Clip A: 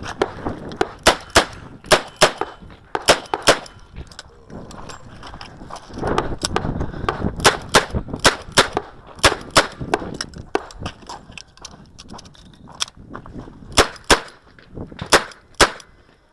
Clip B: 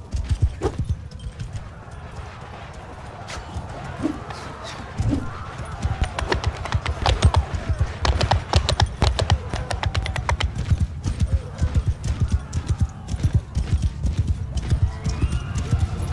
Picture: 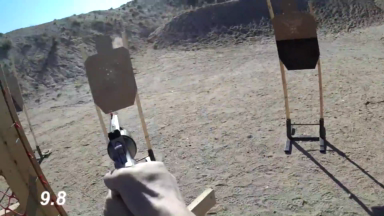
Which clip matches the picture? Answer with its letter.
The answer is A